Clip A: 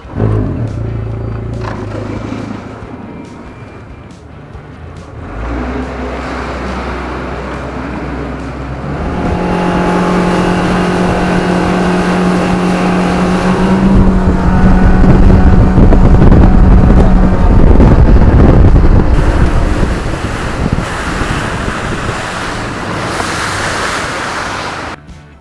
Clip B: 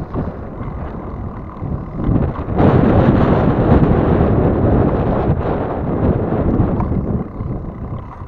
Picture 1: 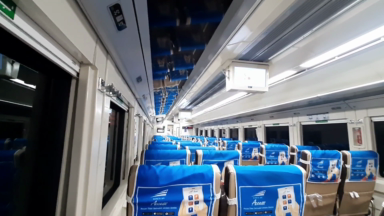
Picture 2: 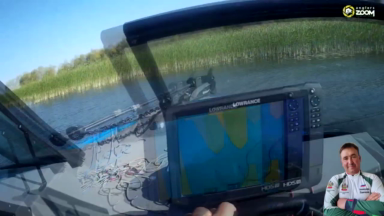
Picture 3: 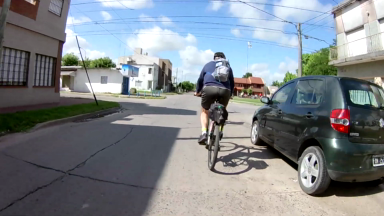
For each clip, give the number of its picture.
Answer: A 2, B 3